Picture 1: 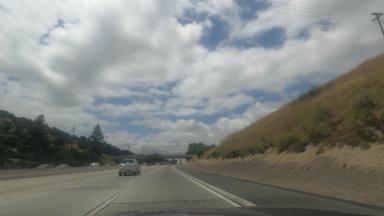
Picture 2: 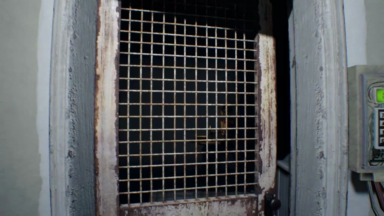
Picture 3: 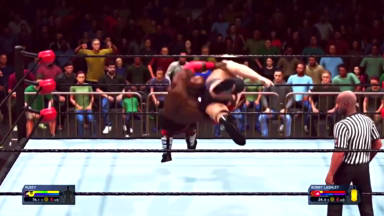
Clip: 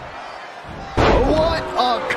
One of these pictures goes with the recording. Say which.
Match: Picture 3